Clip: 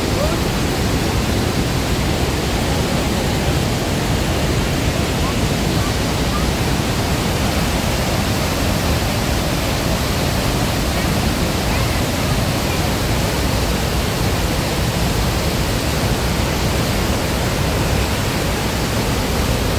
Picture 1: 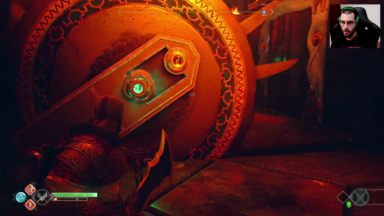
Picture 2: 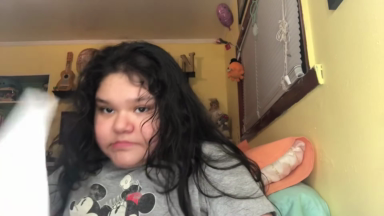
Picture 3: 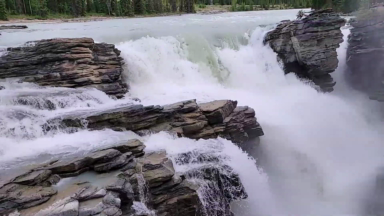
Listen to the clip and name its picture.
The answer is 3